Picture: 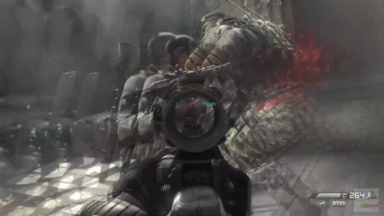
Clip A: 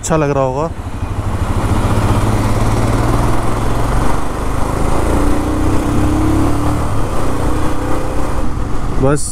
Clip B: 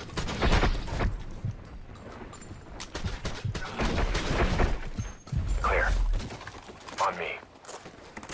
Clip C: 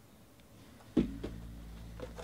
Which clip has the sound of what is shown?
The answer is B